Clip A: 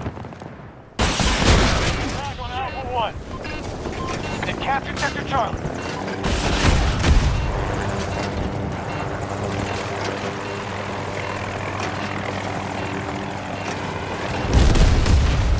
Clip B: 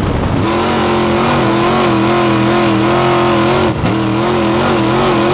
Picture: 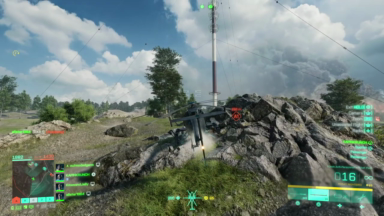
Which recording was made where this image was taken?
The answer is A